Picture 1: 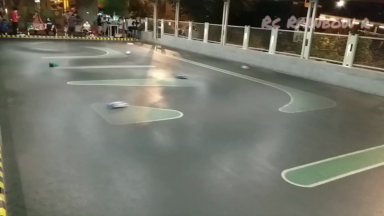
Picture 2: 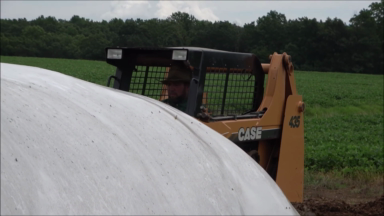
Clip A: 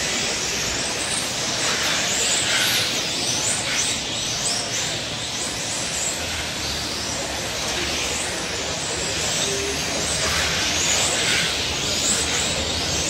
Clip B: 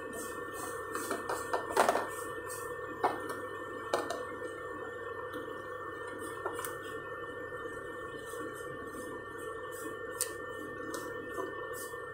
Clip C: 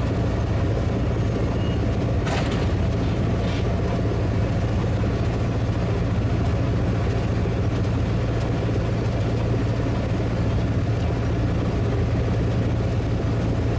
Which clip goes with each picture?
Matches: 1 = A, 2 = C